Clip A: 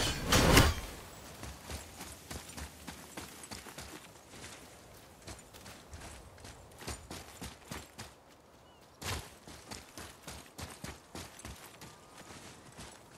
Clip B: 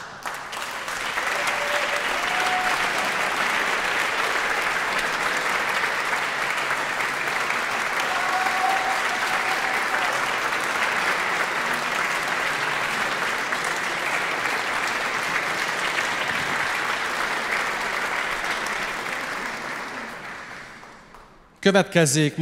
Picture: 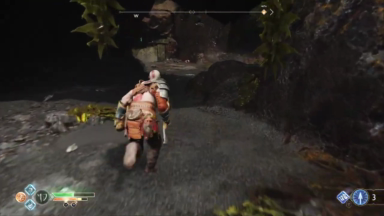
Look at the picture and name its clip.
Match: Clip A